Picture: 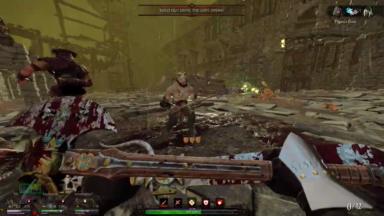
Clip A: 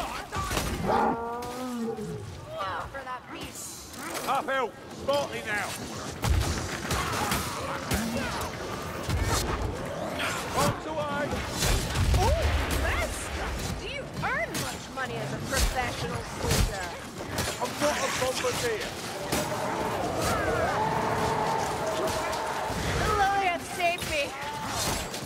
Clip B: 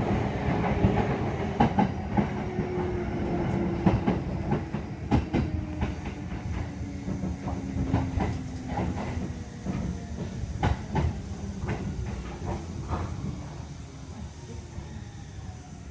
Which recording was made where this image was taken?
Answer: A